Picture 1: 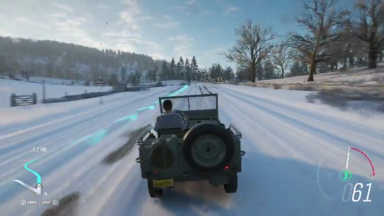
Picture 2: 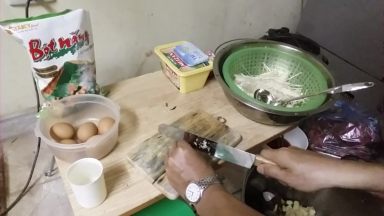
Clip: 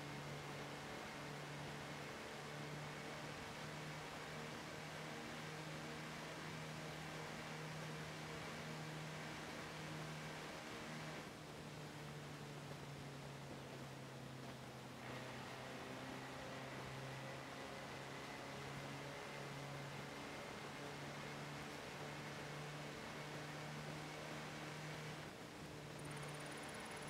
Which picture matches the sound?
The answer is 1